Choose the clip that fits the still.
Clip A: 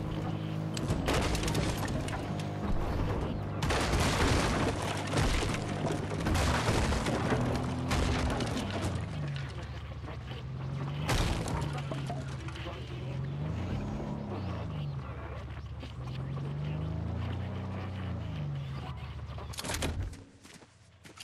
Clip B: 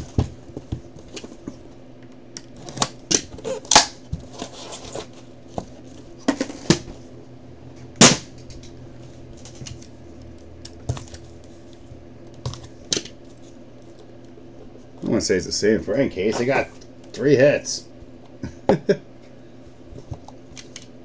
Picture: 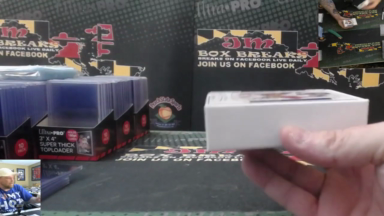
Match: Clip B